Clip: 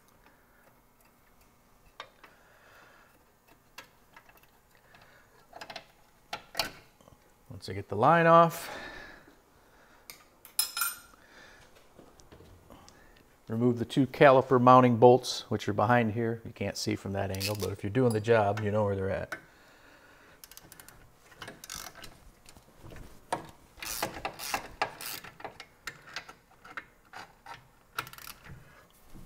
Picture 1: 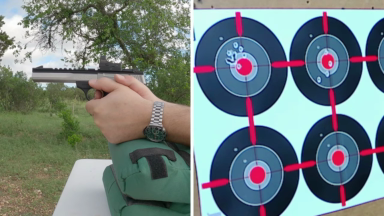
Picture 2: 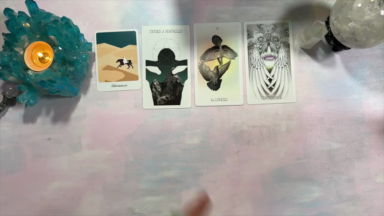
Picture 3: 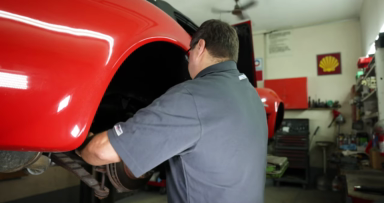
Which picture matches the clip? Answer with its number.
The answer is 3